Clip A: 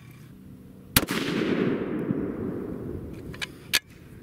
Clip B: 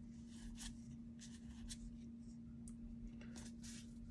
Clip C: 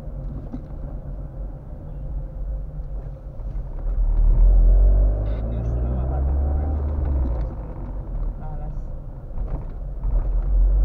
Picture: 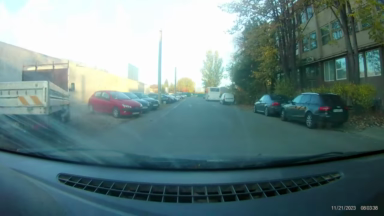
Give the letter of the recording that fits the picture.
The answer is C